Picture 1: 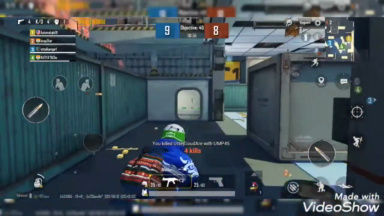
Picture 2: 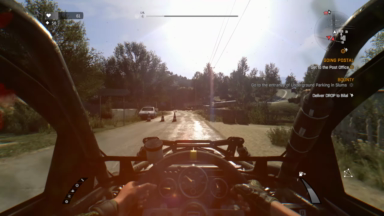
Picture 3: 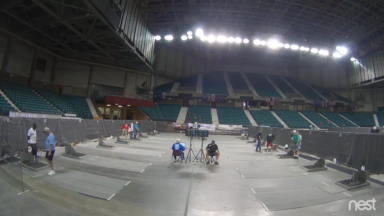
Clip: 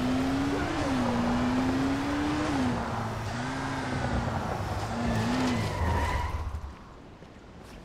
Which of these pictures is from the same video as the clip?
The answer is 2